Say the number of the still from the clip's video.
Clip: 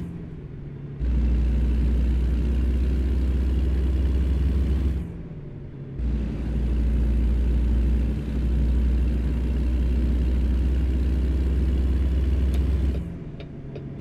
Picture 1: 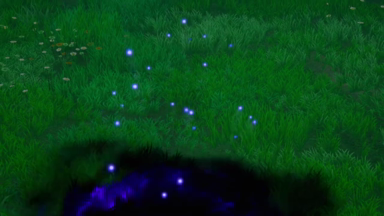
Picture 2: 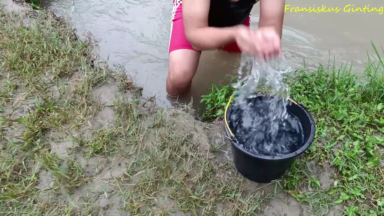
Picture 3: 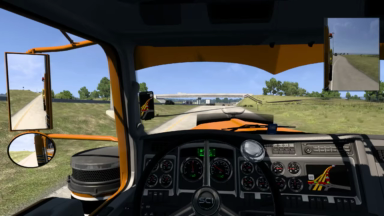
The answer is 3